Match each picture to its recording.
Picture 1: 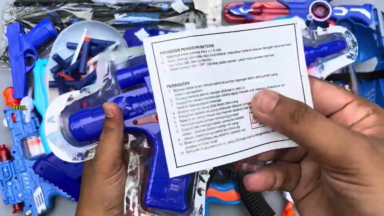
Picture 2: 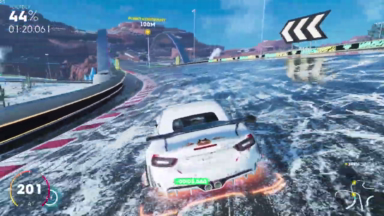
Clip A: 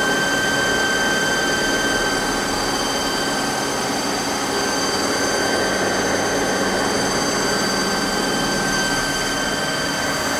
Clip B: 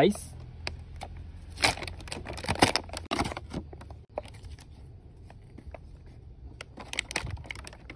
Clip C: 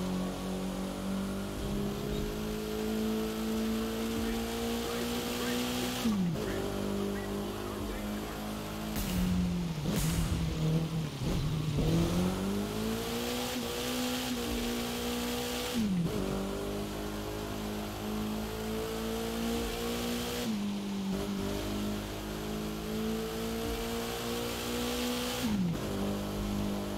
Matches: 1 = B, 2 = C